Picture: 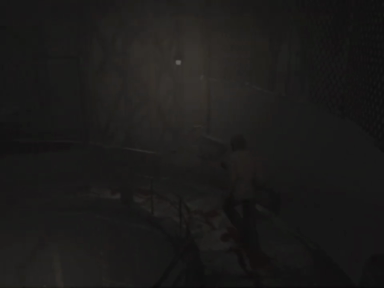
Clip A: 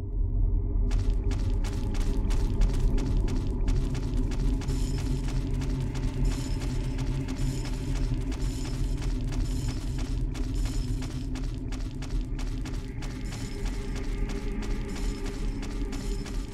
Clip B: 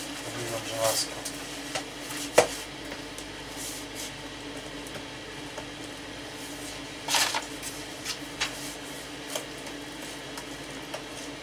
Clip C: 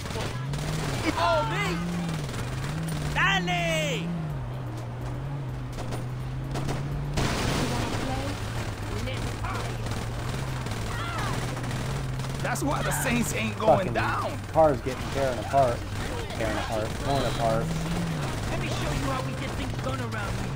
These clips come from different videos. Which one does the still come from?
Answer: A